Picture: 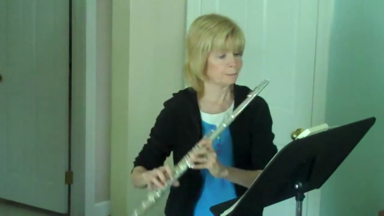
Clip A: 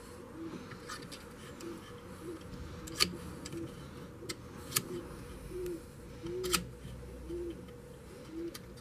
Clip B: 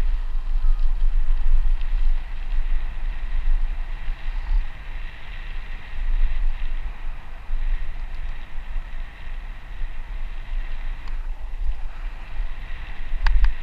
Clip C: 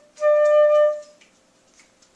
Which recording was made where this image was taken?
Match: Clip C